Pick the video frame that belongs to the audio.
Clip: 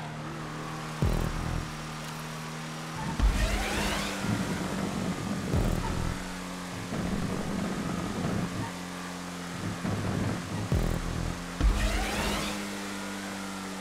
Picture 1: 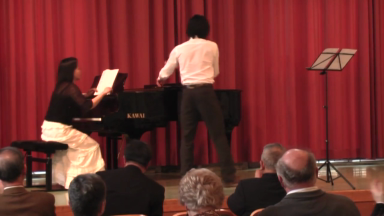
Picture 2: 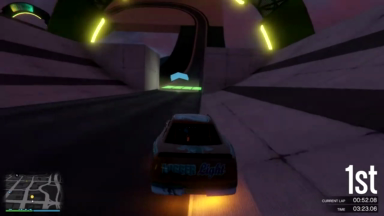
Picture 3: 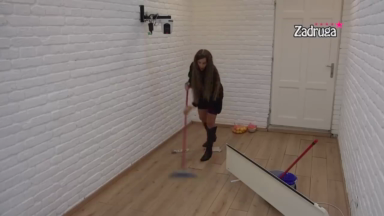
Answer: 2